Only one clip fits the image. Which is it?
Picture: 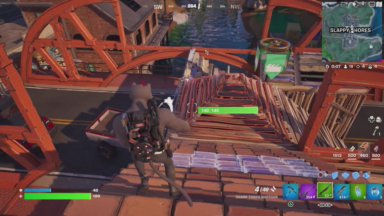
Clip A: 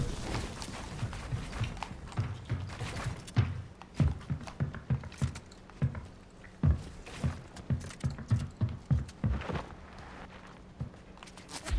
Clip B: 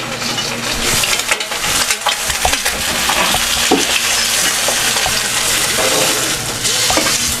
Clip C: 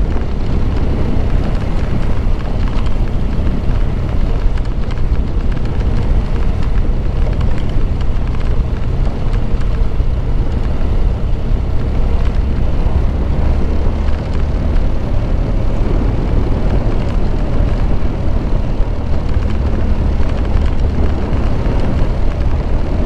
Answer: A